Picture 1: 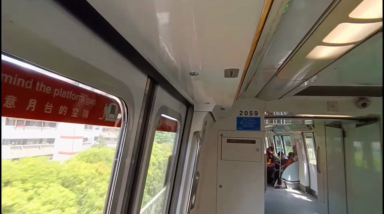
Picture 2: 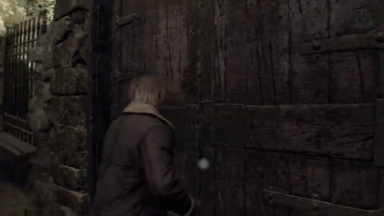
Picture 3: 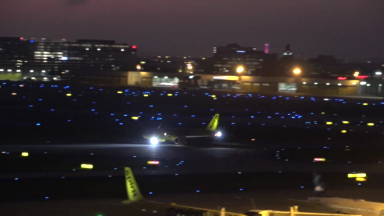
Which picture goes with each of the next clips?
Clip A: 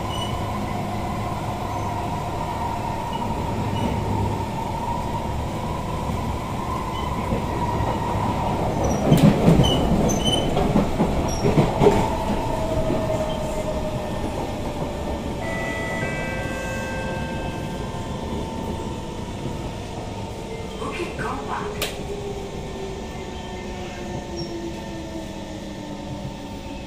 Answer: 1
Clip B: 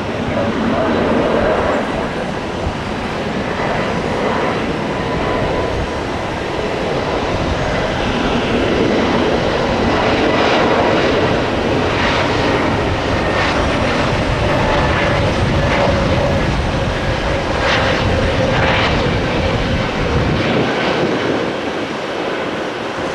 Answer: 3